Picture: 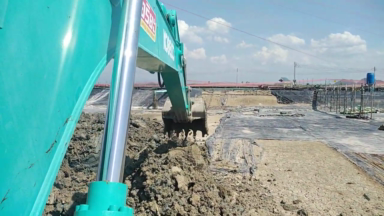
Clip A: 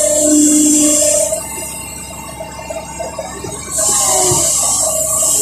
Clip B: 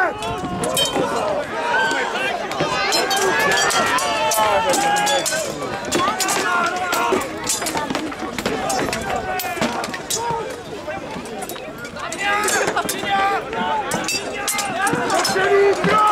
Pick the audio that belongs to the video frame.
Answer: A